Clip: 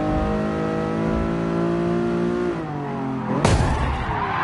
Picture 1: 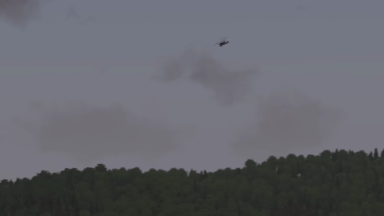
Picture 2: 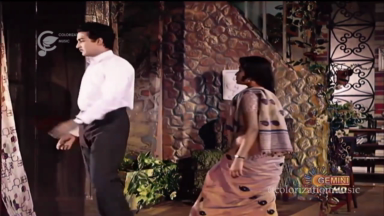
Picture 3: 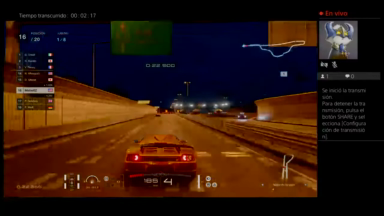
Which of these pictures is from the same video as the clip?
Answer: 3